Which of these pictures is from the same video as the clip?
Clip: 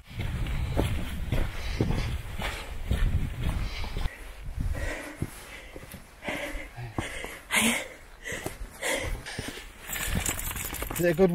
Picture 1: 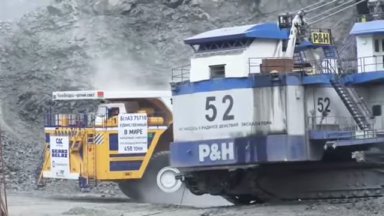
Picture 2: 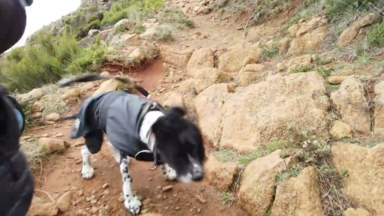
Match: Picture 2